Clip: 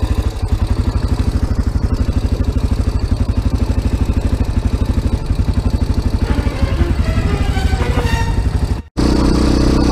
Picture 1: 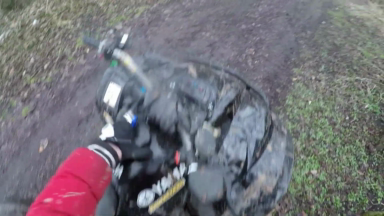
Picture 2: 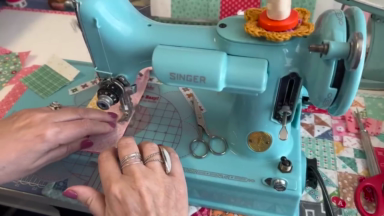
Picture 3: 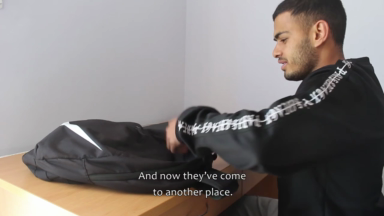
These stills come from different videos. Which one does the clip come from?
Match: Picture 1